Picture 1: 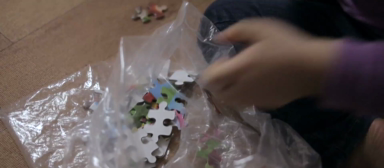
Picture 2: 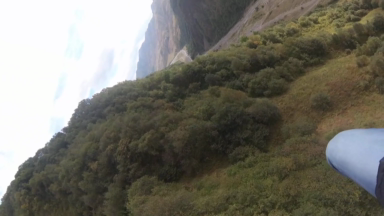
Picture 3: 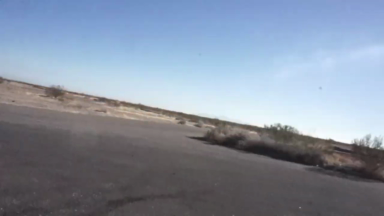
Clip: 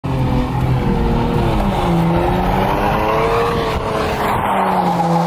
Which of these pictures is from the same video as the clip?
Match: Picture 3